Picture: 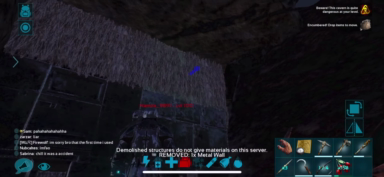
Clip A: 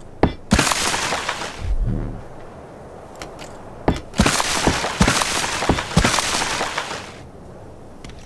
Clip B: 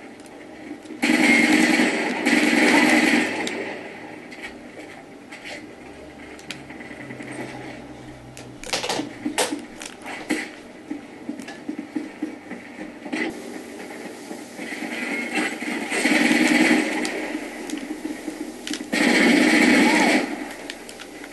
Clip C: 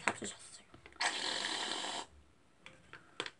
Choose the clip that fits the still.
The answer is A